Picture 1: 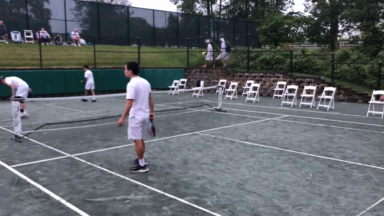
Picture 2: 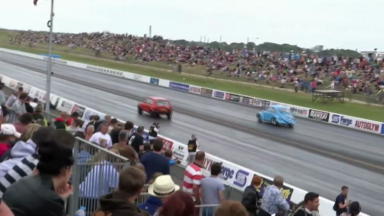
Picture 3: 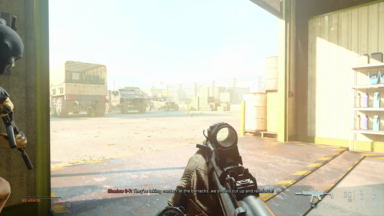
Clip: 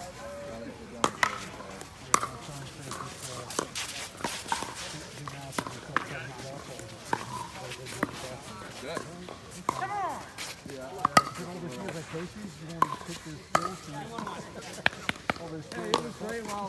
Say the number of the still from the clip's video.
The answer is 1